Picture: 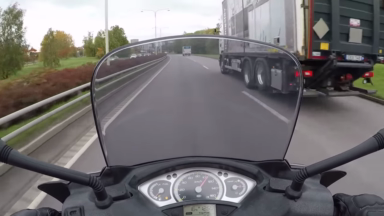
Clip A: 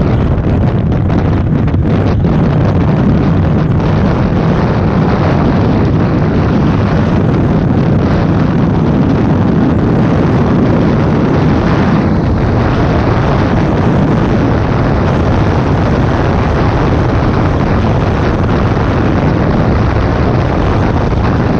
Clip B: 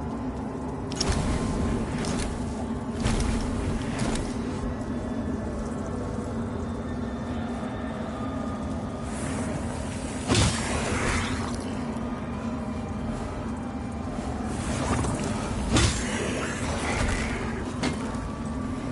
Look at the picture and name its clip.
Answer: A